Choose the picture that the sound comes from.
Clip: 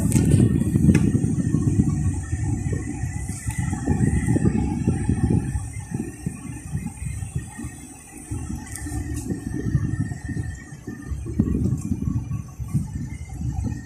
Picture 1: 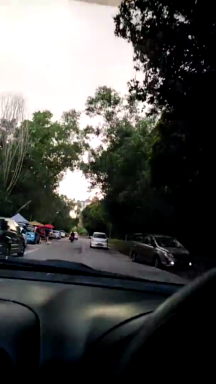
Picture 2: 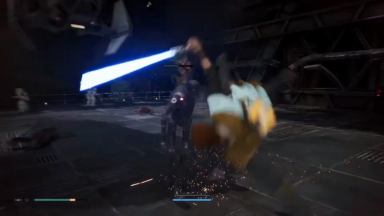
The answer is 1